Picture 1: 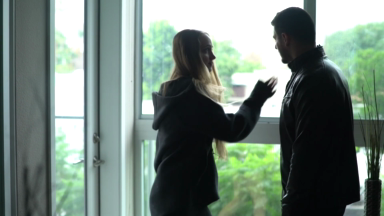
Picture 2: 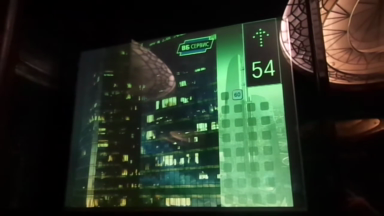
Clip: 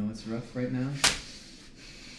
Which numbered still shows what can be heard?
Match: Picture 1